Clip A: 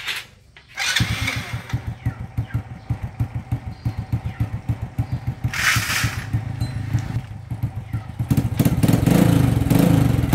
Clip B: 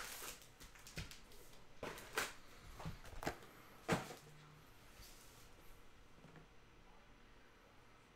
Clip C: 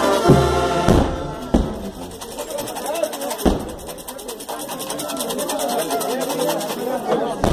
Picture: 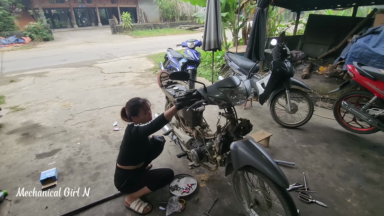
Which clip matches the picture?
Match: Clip A